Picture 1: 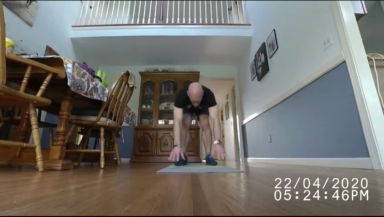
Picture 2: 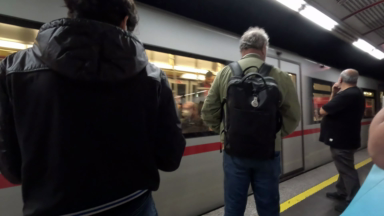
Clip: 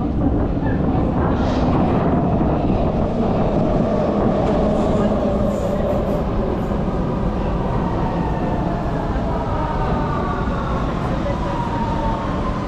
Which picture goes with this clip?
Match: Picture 2